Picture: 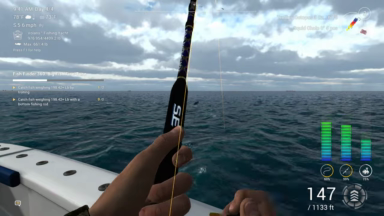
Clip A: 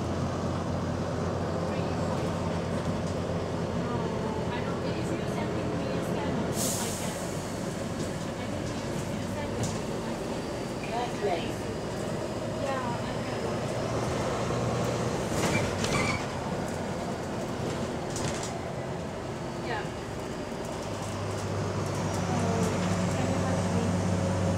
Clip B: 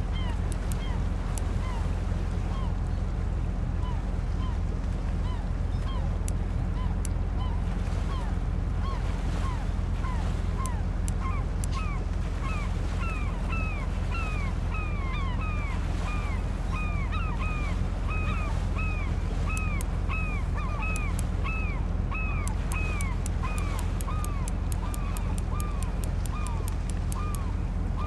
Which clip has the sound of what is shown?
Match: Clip B